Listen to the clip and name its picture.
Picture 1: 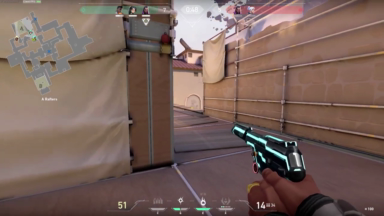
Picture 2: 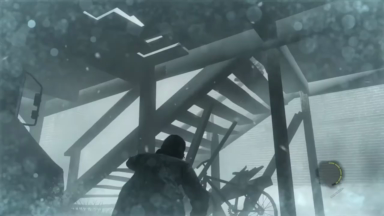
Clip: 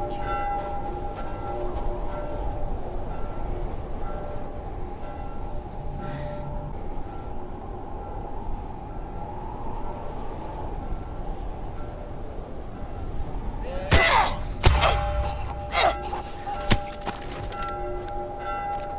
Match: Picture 2